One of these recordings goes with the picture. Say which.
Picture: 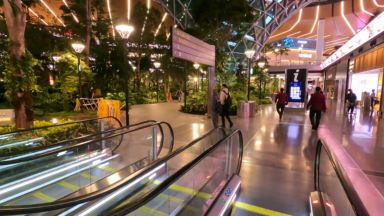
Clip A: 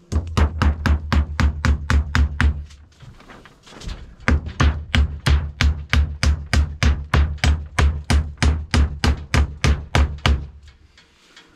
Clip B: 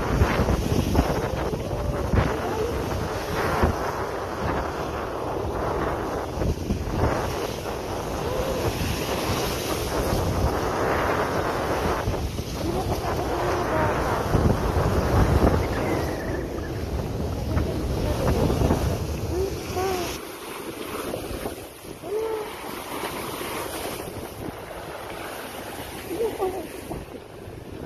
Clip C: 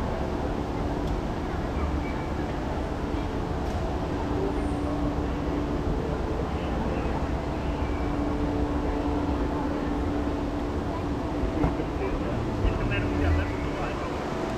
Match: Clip C